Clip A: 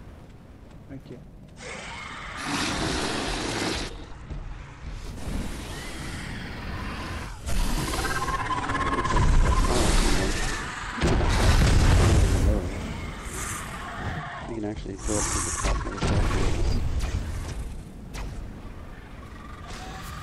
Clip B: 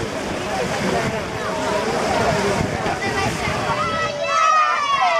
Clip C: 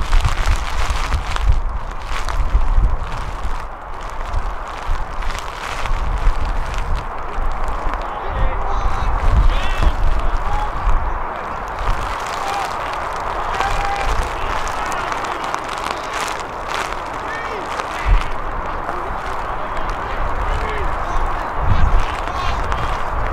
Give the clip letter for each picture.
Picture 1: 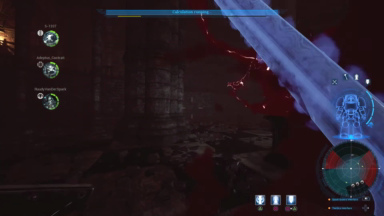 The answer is A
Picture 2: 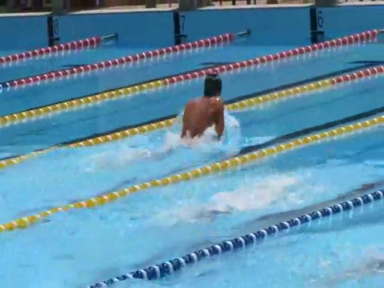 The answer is B